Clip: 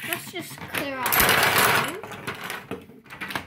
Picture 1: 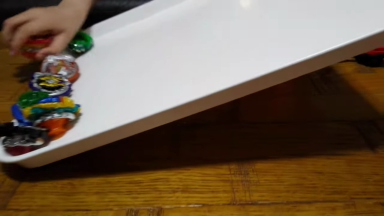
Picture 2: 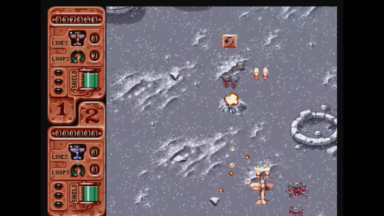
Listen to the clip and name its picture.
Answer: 1